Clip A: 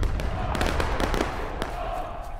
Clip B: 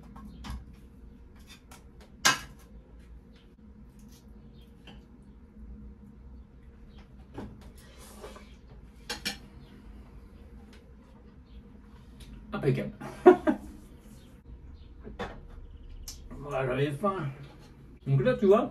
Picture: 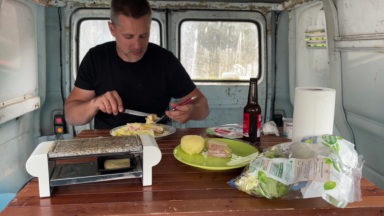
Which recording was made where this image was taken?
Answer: B